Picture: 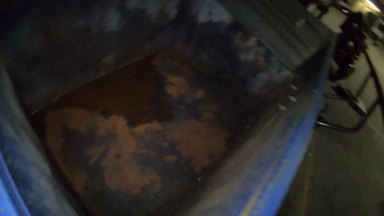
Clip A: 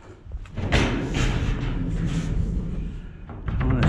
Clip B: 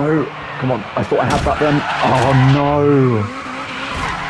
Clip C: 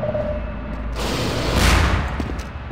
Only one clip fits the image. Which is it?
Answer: A